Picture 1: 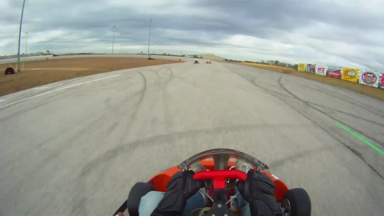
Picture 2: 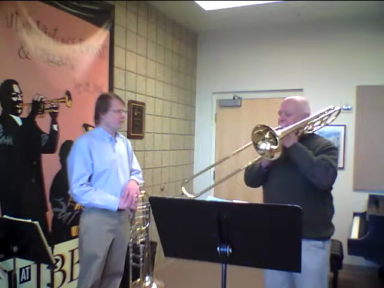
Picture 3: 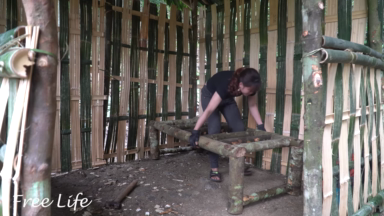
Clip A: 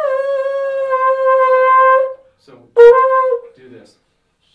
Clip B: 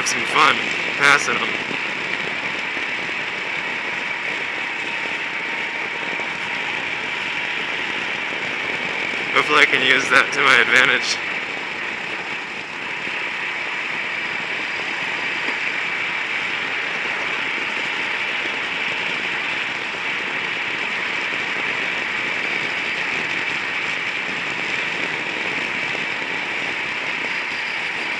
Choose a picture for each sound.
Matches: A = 2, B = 1